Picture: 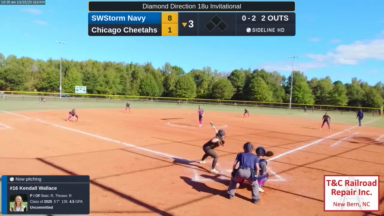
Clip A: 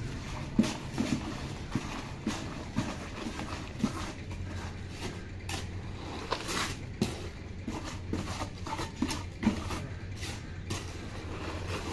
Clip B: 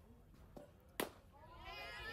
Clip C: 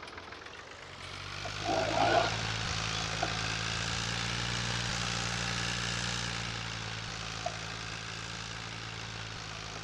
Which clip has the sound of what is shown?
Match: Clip B